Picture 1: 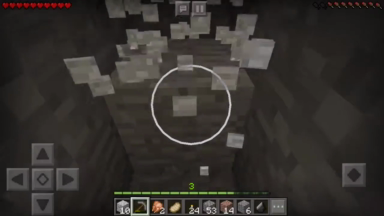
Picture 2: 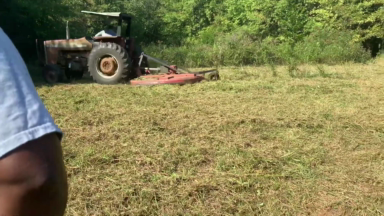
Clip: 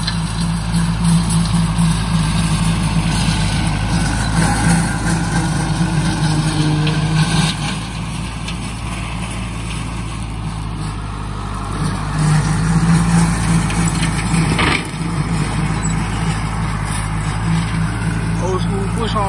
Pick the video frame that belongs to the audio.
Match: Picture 2